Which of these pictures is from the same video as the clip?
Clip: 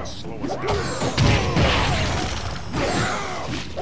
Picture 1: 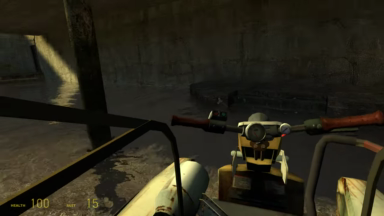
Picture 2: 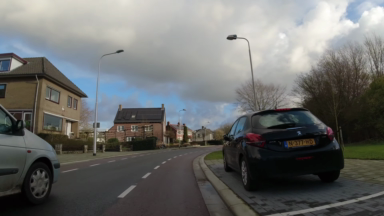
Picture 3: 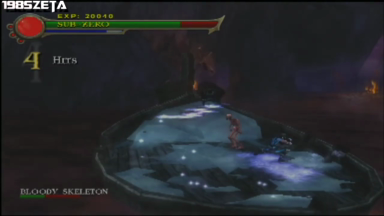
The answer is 3